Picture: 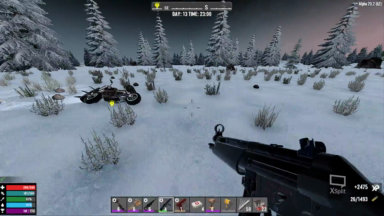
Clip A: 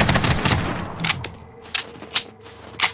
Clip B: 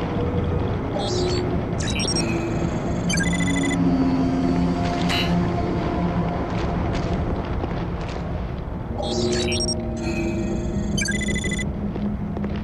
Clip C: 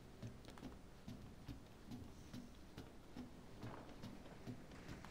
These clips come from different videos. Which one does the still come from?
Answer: A